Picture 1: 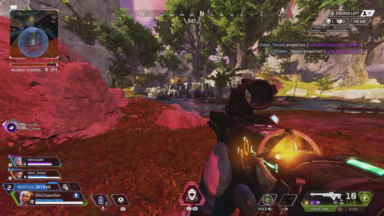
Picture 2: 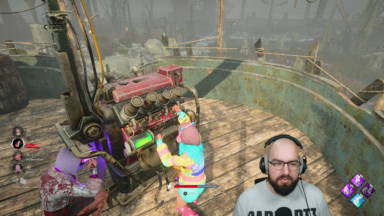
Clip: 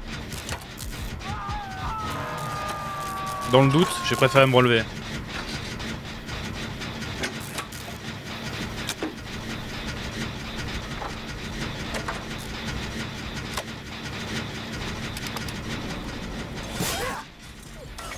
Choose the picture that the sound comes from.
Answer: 2